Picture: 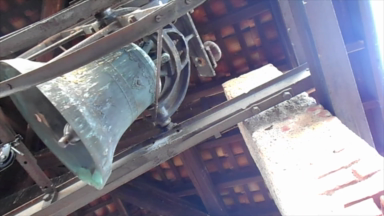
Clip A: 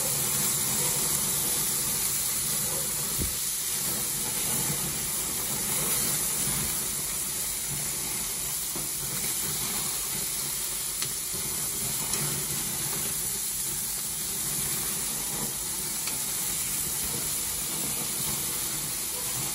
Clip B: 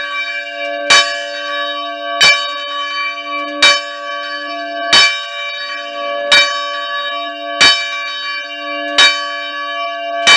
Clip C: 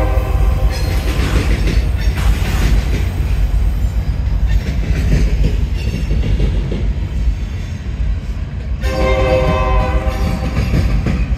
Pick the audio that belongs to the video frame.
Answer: B